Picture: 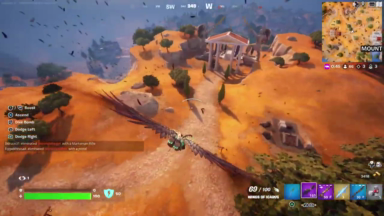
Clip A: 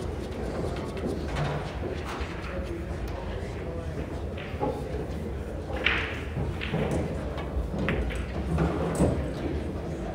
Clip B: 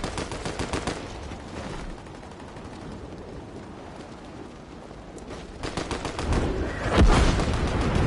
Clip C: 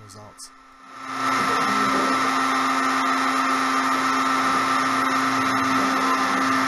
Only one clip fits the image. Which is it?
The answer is B